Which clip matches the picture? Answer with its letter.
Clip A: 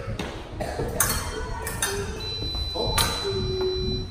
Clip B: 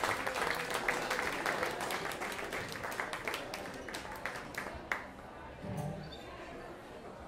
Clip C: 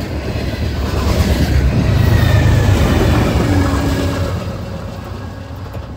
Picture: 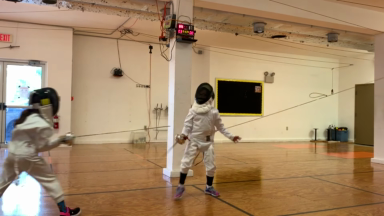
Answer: A